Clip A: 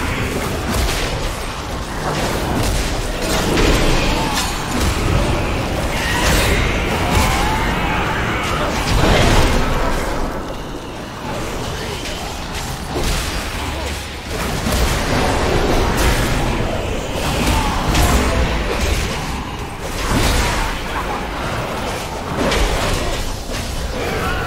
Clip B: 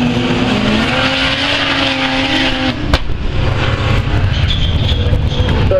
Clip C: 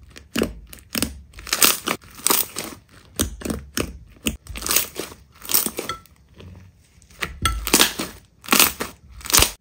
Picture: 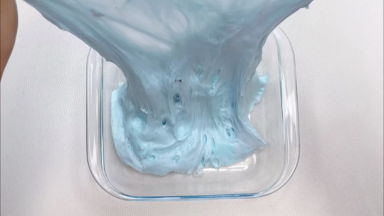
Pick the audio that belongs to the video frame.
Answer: C